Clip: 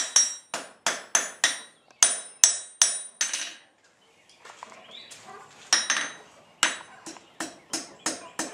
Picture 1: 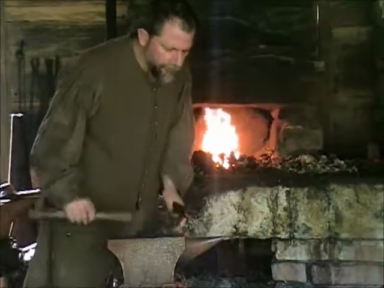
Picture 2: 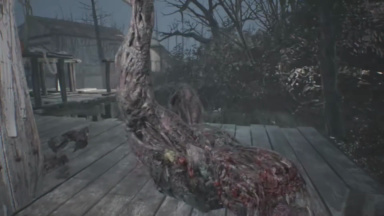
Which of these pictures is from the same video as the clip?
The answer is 1